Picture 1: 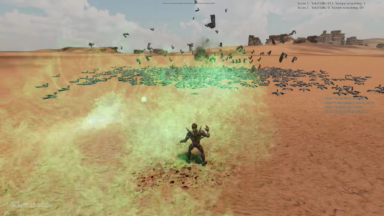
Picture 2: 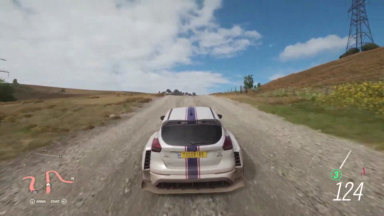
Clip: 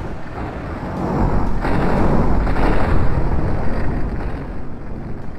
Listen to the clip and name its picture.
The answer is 1